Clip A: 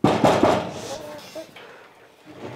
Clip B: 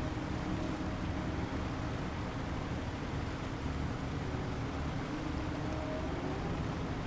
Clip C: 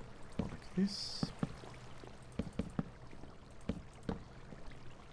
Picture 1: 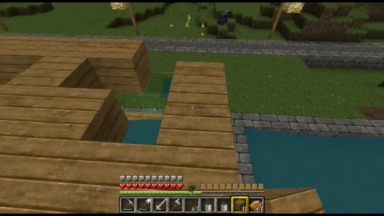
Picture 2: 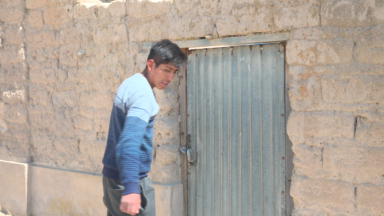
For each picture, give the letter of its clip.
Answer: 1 C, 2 A